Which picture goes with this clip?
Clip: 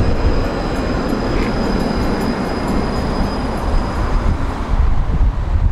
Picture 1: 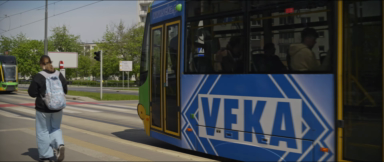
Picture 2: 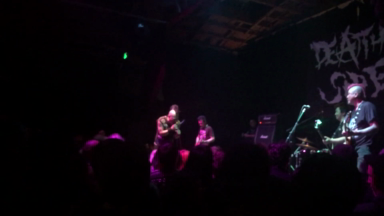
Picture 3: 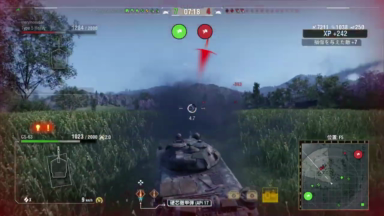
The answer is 1